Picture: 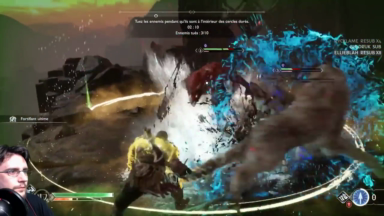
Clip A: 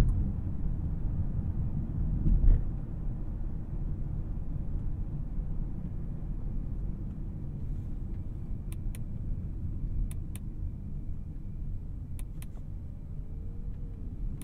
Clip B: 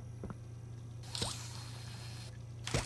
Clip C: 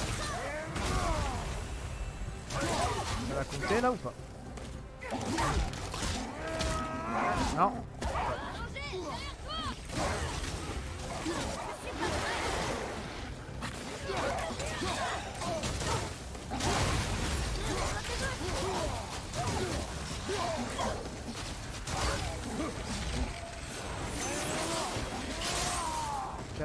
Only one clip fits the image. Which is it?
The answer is C